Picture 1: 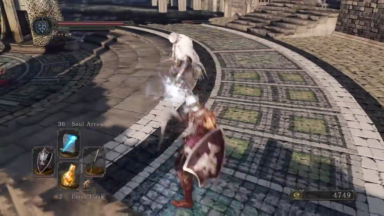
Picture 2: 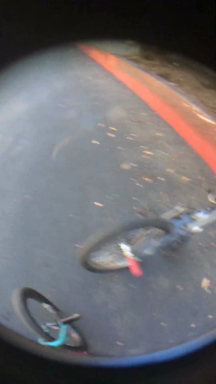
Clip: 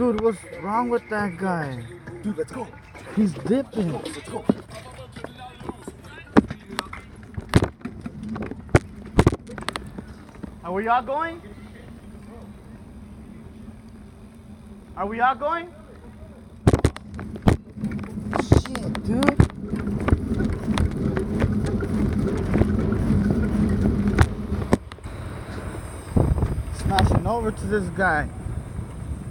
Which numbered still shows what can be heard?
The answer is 2